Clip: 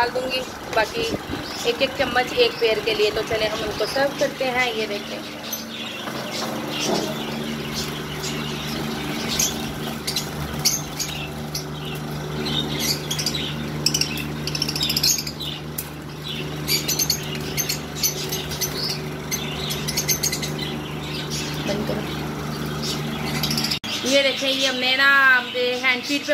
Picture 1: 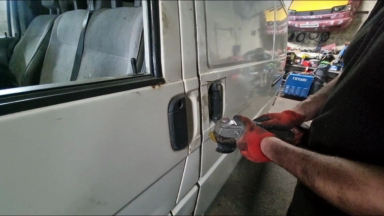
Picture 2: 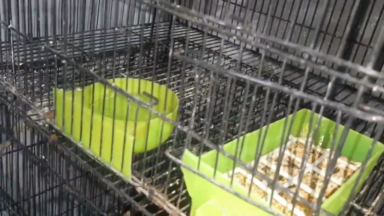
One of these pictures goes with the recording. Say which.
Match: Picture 2